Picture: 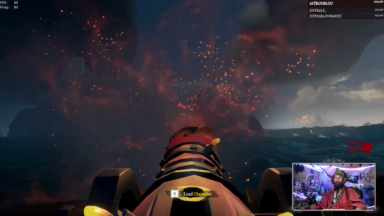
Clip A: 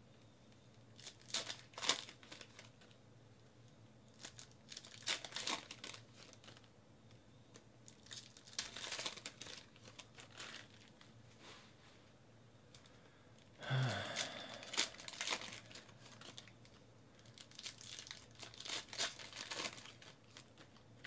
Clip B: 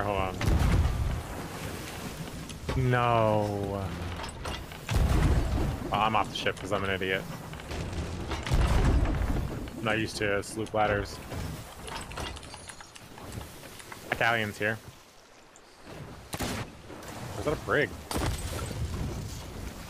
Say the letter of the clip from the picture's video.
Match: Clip B